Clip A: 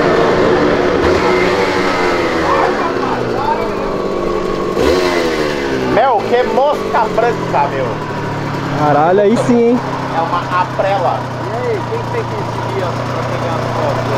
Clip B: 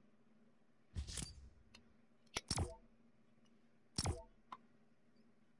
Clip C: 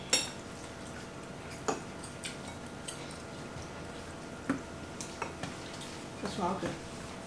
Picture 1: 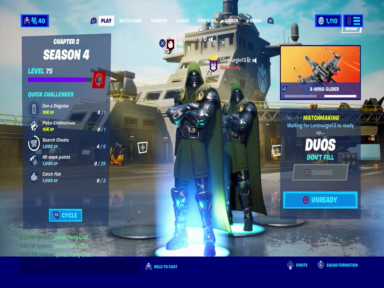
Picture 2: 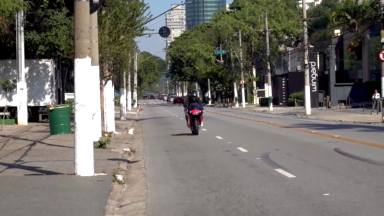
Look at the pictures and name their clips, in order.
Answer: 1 B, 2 A